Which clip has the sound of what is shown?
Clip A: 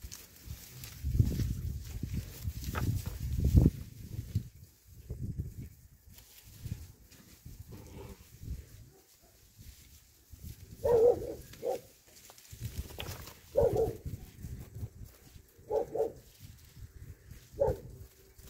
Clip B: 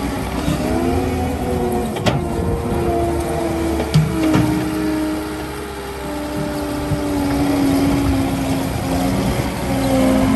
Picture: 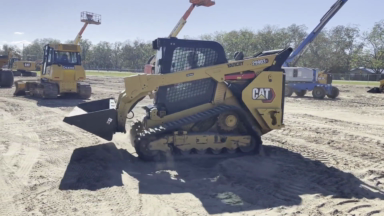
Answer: B